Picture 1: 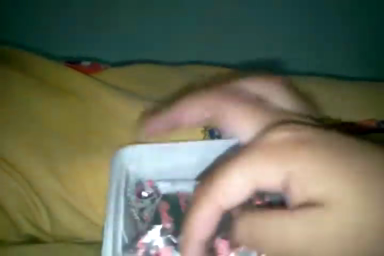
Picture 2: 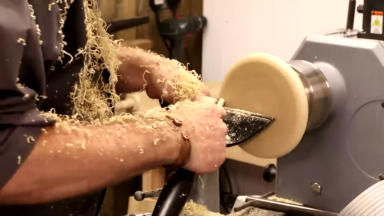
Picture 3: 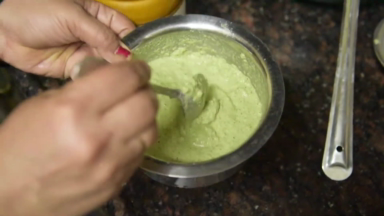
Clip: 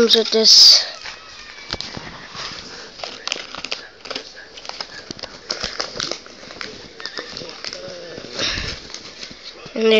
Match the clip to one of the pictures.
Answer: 1